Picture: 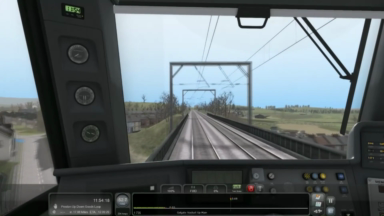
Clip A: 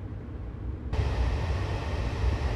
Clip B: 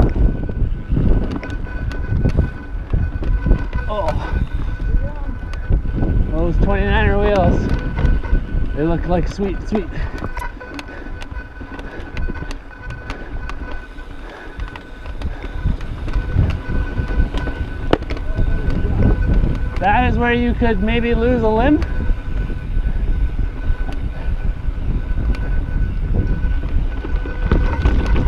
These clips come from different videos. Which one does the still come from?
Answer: A